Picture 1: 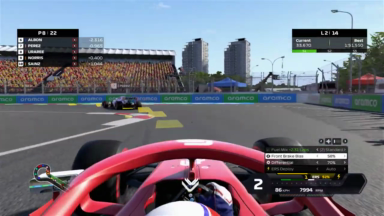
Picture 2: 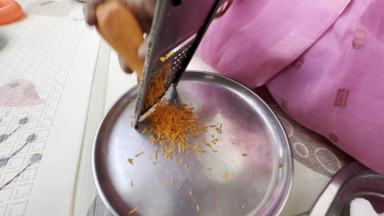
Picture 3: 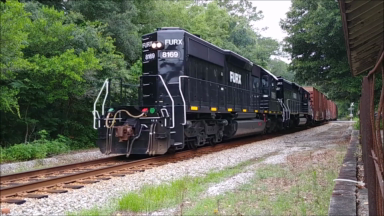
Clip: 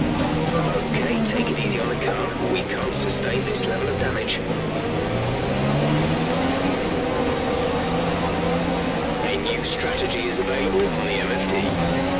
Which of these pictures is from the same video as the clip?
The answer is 1